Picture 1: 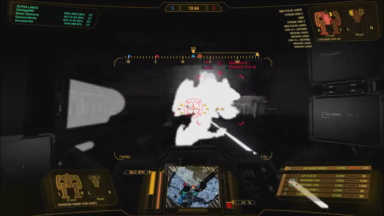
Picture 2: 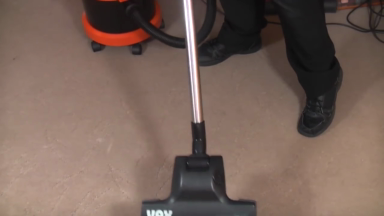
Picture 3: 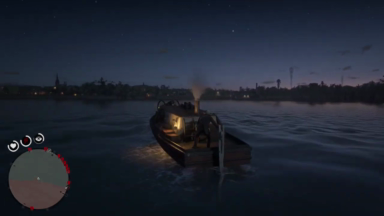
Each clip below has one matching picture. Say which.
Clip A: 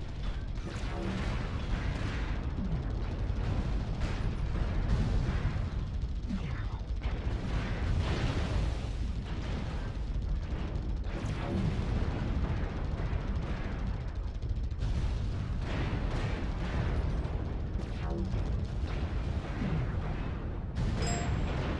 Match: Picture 1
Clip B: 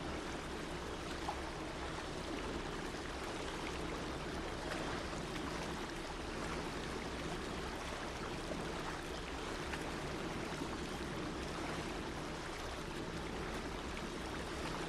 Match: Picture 3